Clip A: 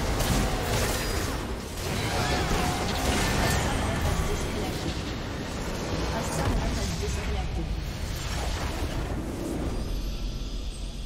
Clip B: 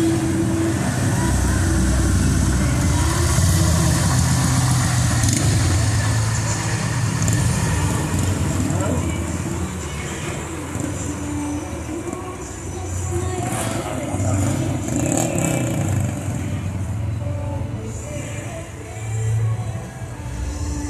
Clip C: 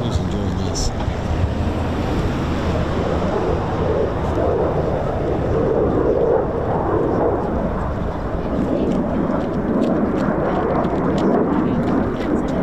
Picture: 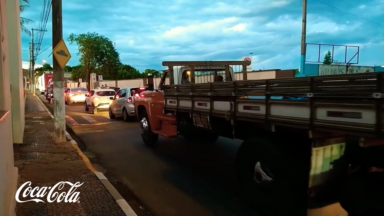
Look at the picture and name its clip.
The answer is B